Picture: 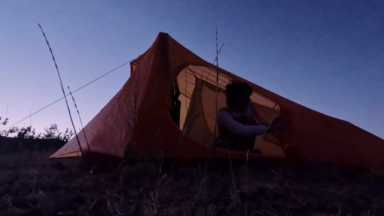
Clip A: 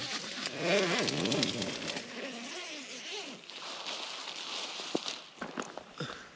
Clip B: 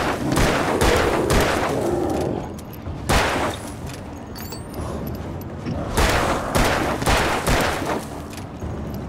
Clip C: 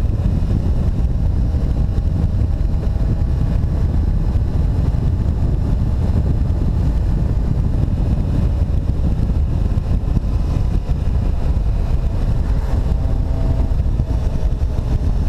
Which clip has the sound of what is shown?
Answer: A